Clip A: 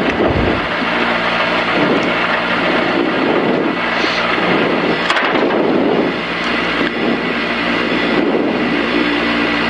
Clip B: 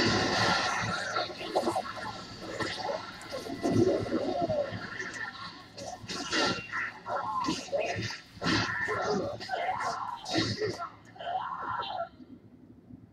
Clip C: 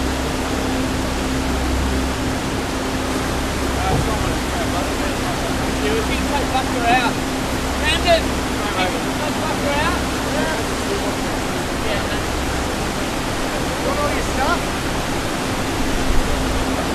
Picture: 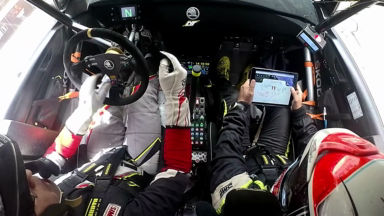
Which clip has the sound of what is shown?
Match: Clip A